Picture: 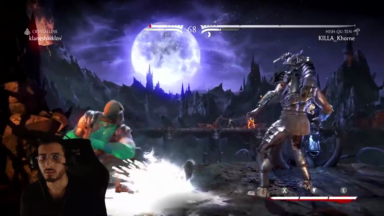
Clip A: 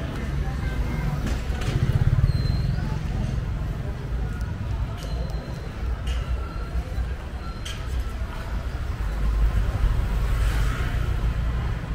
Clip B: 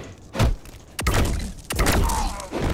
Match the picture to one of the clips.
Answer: B